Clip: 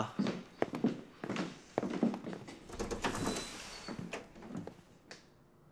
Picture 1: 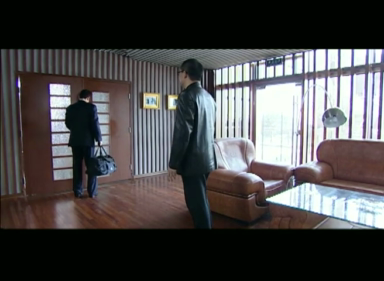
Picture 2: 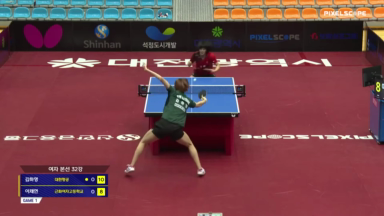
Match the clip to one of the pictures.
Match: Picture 1